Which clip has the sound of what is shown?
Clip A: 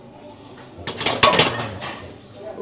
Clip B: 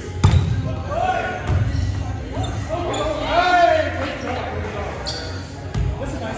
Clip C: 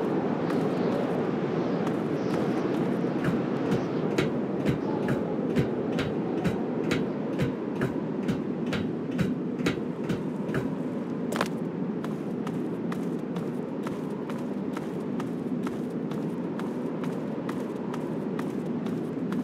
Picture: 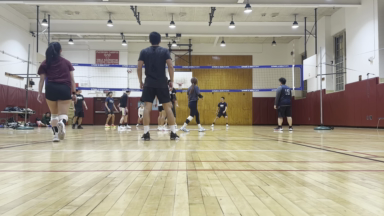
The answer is B